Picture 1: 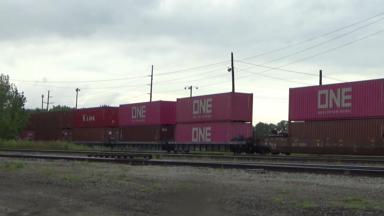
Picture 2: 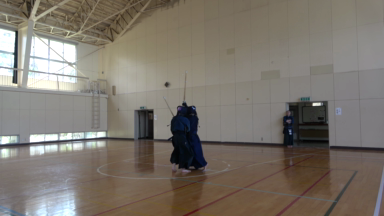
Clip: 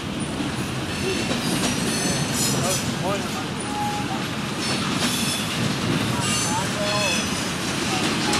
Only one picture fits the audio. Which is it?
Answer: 1